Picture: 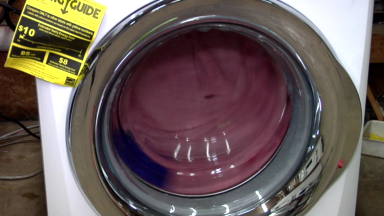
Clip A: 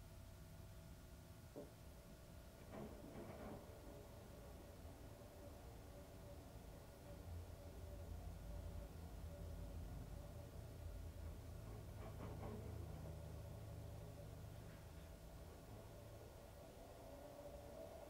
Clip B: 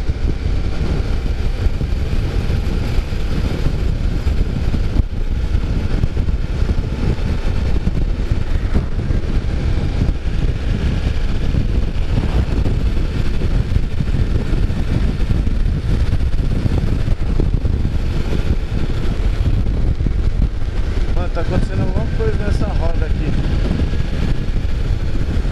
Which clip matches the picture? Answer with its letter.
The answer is A